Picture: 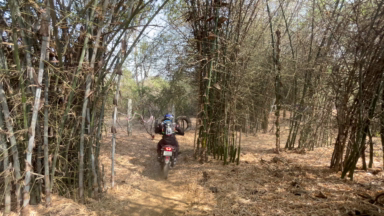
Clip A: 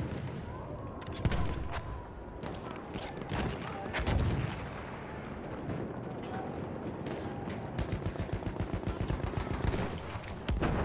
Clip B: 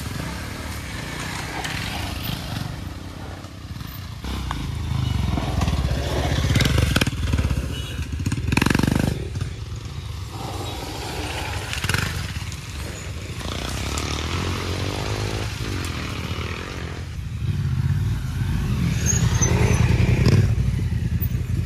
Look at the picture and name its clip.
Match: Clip B